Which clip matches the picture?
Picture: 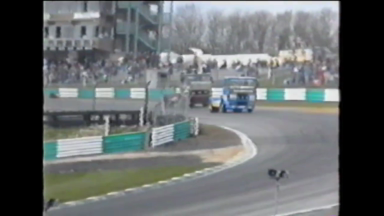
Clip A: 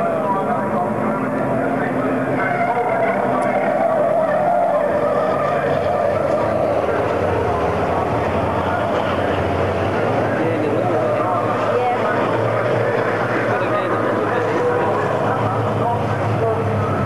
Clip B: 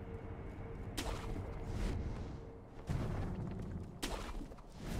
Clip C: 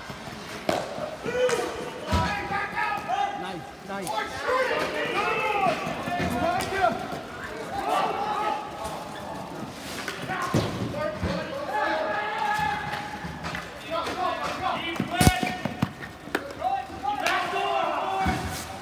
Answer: A